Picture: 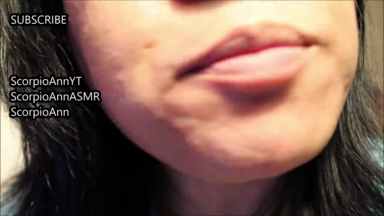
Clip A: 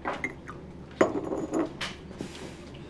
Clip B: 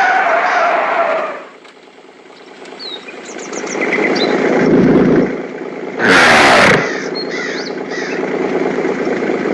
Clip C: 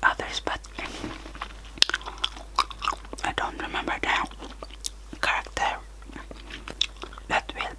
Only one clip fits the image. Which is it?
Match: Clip C